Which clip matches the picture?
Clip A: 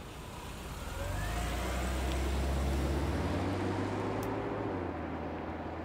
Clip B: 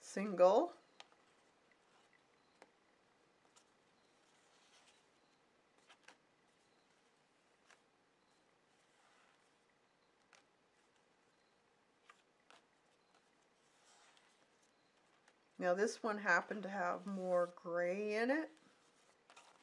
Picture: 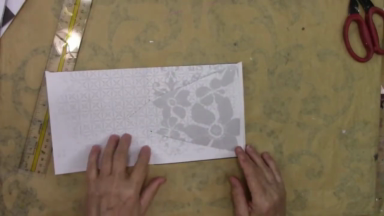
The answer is B